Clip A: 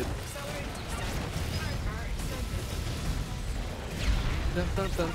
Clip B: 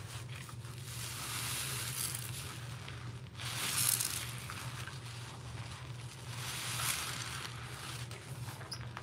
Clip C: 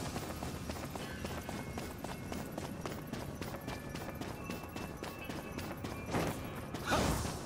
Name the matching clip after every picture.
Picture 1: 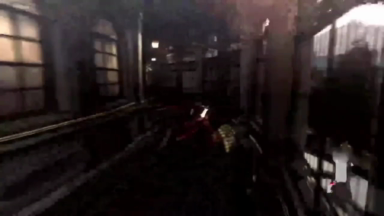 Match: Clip C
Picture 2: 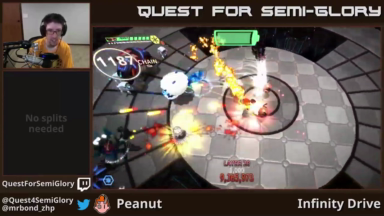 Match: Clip A